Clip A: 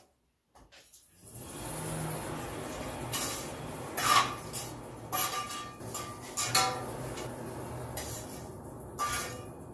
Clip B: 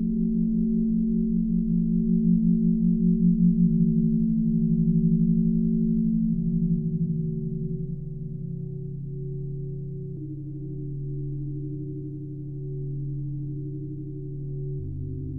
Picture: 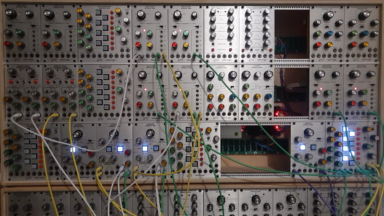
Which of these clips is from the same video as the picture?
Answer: B